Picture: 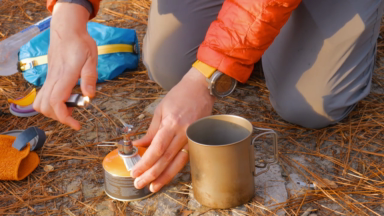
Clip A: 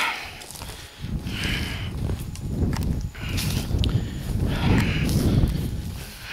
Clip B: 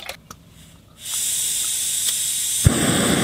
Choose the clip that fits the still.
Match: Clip B